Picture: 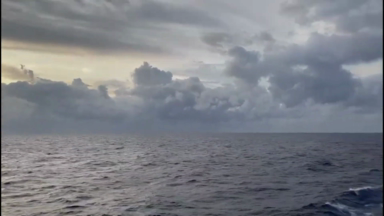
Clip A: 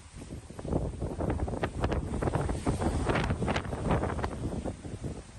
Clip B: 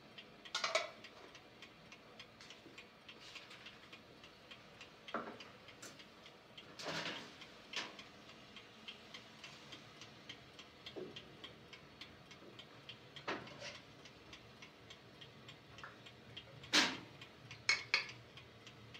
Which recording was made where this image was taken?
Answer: A